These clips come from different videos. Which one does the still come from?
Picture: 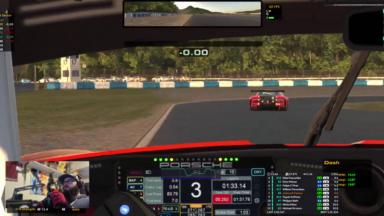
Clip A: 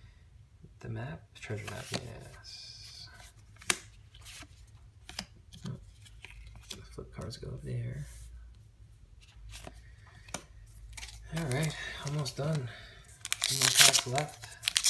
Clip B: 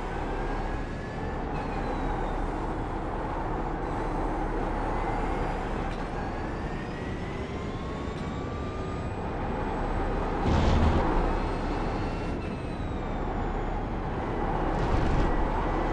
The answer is B